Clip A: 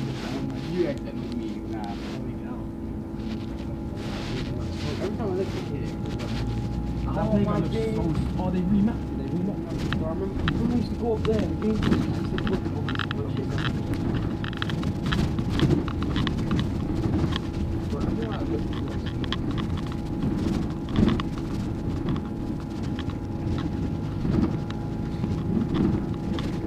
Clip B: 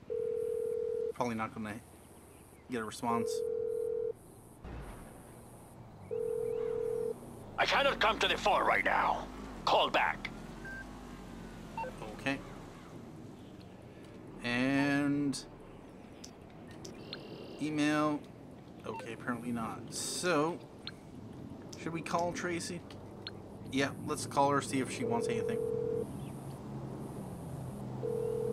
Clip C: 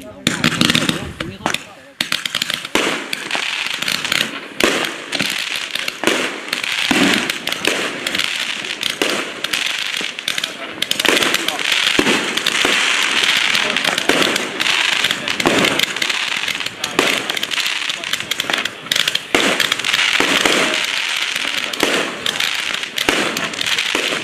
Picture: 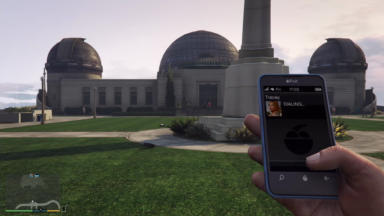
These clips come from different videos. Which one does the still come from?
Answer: B